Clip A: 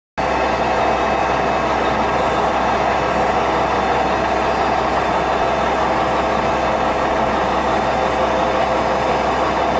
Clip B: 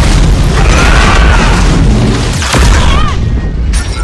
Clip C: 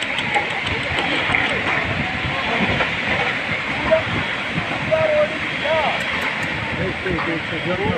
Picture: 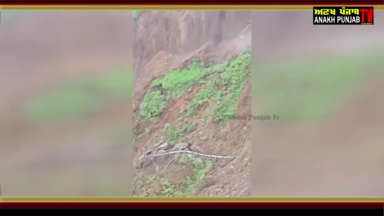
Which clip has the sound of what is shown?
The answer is C